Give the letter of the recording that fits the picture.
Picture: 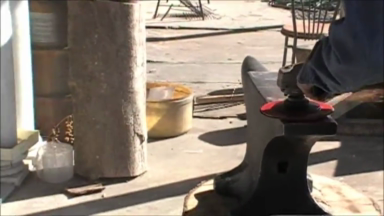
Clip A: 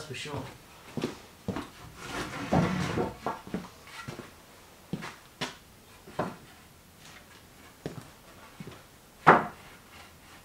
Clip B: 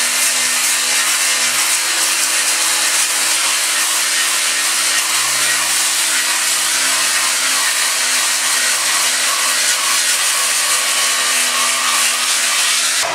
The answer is B